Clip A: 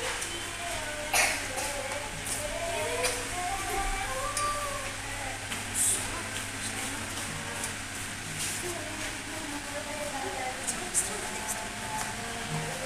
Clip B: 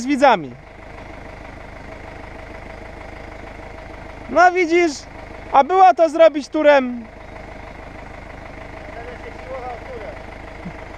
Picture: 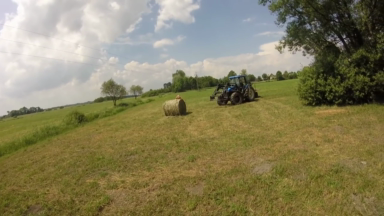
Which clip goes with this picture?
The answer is B